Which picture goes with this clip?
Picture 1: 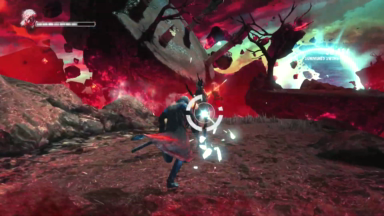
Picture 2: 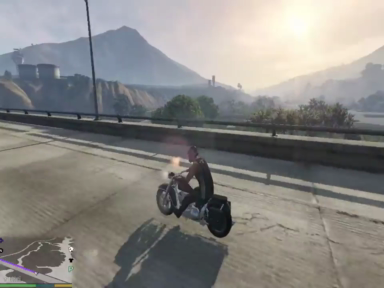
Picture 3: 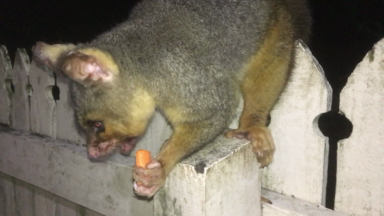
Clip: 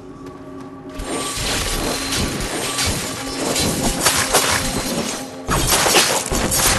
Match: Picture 1